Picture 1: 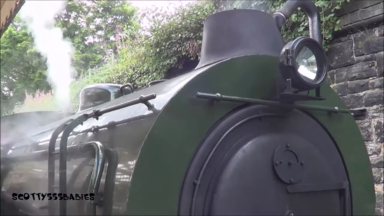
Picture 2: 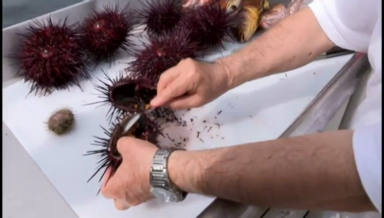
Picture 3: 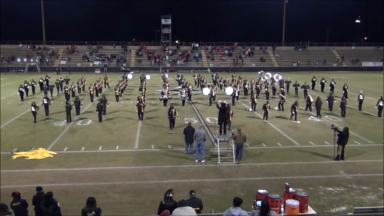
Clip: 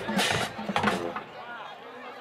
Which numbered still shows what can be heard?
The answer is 3